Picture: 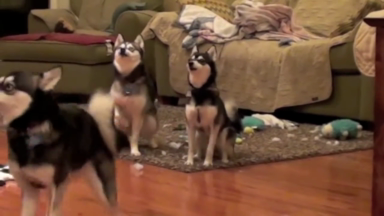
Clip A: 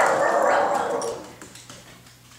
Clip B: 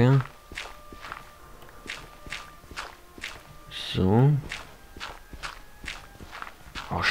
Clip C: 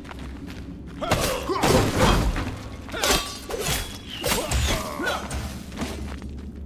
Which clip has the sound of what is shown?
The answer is A